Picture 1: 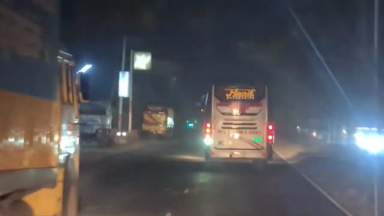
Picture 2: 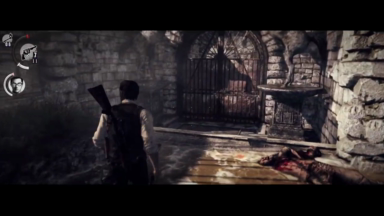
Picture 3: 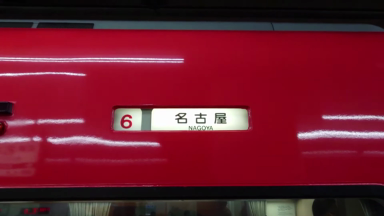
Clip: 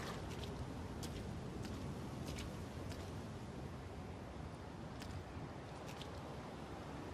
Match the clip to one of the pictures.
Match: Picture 2